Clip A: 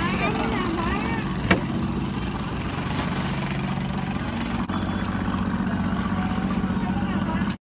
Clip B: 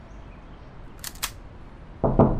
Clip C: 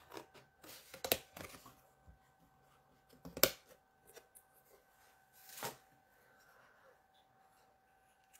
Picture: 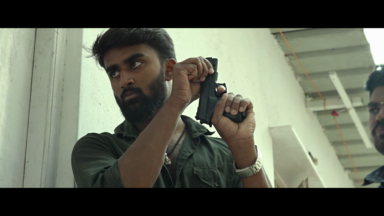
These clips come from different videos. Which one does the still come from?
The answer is B